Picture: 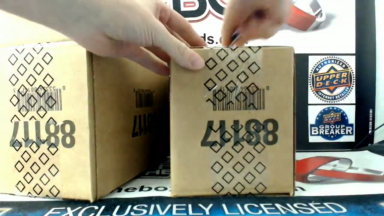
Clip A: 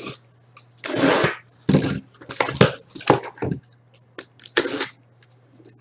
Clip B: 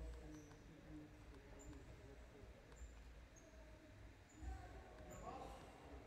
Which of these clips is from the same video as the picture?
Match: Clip A